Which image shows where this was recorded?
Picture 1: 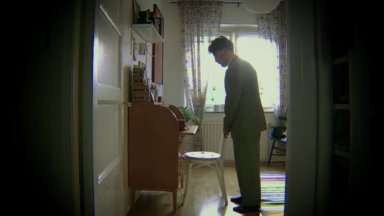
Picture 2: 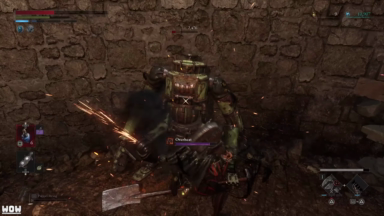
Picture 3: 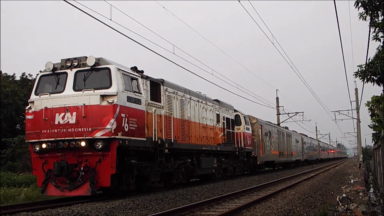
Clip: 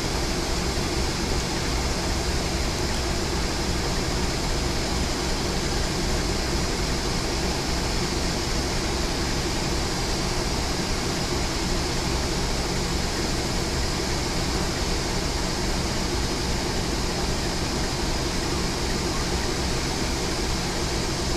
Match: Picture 3